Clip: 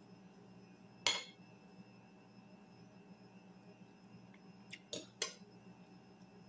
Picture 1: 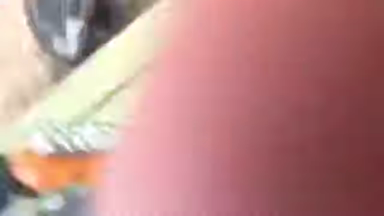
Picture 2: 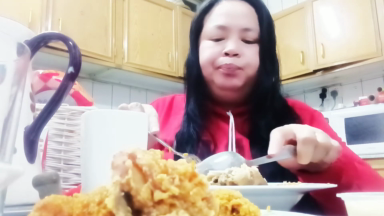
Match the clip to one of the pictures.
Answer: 2